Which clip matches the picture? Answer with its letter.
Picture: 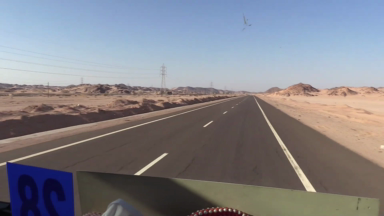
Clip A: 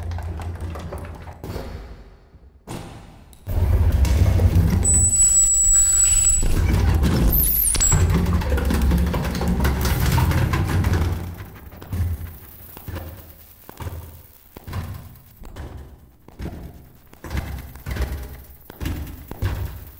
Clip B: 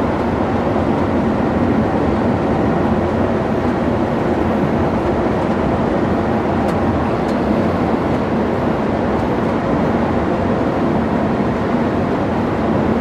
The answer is B